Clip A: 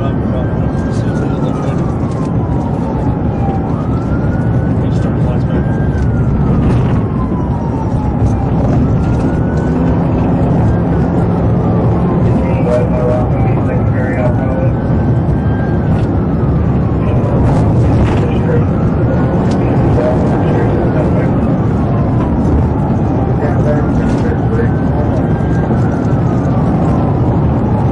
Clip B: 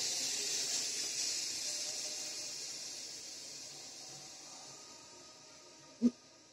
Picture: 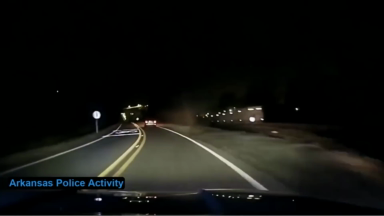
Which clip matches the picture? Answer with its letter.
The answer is A